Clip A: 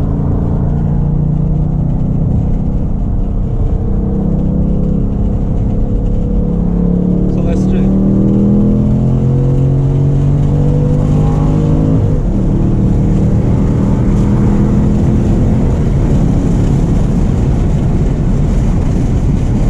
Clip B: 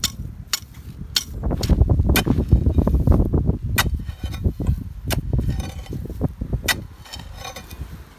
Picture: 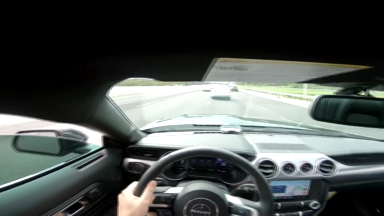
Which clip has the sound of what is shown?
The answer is A